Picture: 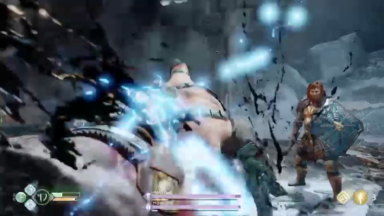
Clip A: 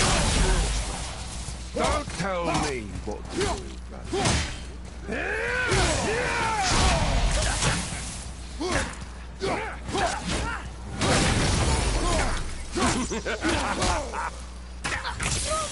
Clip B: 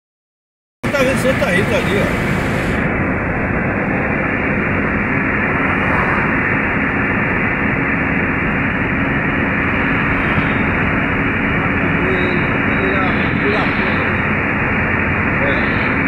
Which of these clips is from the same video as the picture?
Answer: A